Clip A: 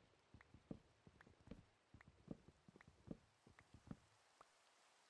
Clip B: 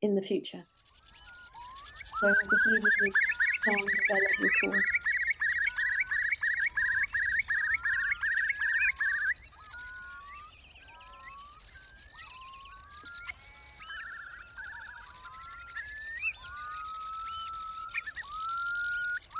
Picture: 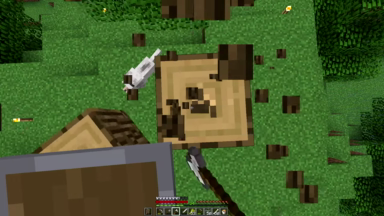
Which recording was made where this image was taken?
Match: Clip A